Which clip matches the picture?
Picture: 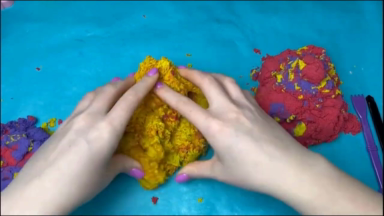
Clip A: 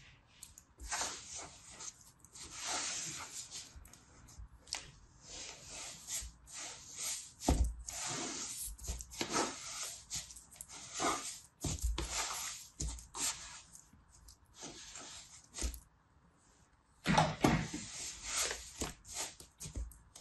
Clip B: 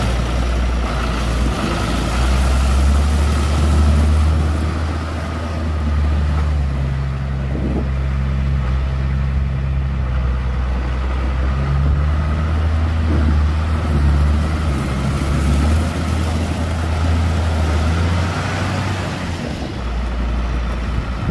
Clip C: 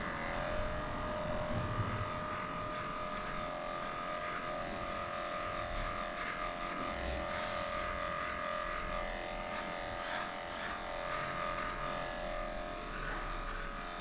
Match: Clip A